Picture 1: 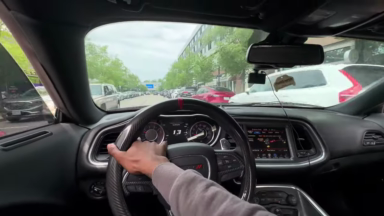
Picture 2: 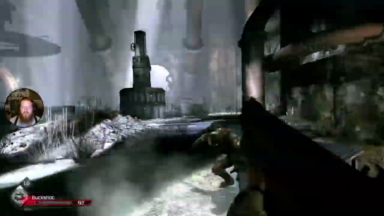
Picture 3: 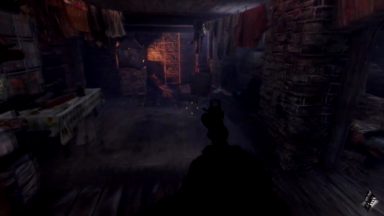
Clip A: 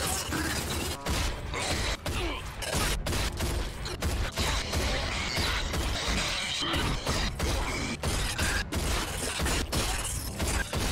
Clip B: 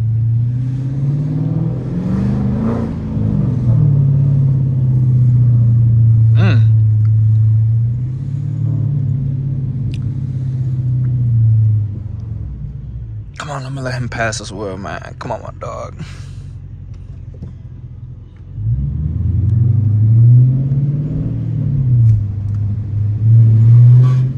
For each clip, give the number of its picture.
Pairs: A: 2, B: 1